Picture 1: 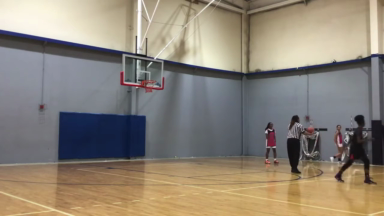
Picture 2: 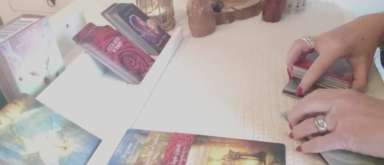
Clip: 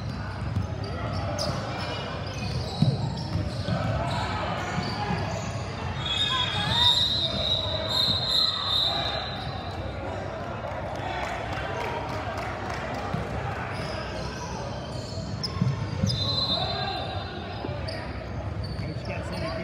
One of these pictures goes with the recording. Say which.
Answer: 1